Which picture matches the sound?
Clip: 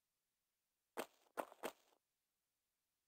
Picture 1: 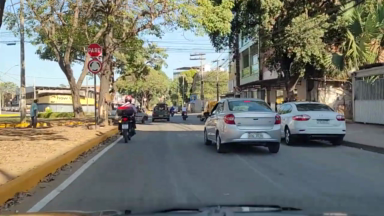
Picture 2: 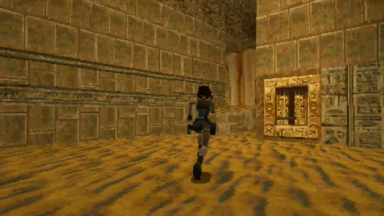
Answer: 2